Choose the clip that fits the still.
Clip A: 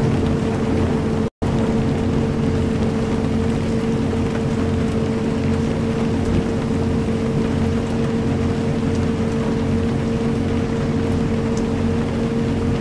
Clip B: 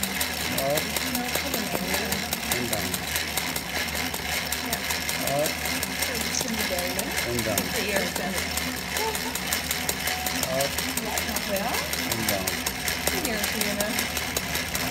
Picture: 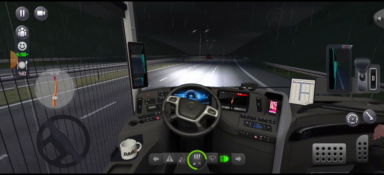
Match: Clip A